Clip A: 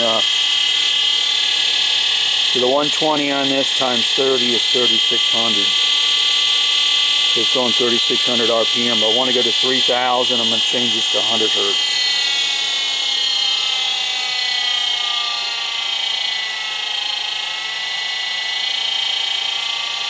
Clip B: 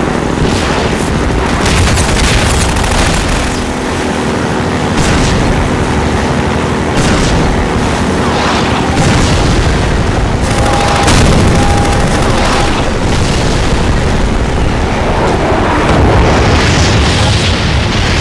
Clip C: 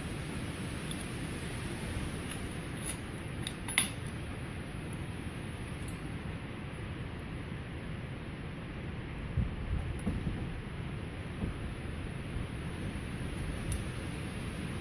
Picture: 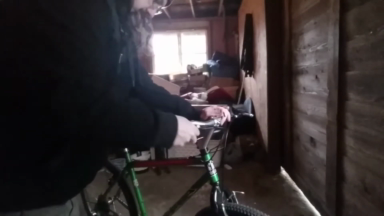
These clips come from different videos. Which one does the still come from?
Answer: C